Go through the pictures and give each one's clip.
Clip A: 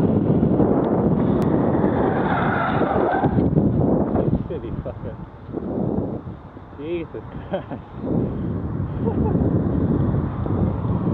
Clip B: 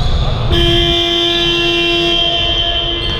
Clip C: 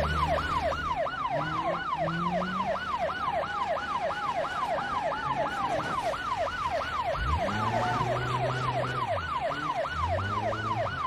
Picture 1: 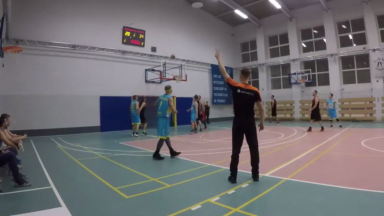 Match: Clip B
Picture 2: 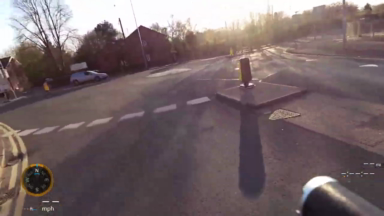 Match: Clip A